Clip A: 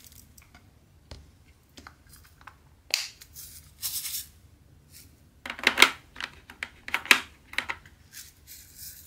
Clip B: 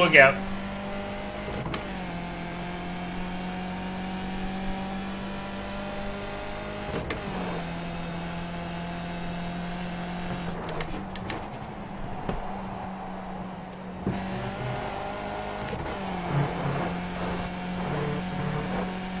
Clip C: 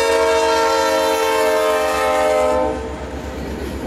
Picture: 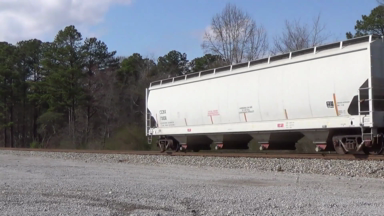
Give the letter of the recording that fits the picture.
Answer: C